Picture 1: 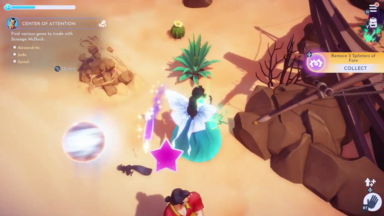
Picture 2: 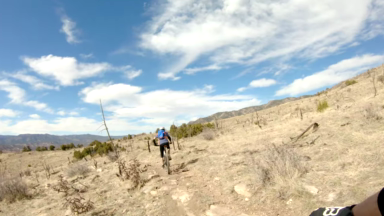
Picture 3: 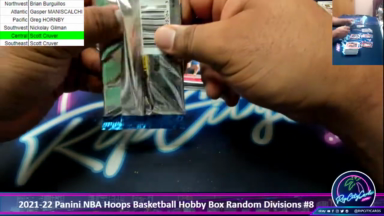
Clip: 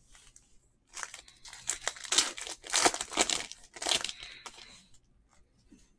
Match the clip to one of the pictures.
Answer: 3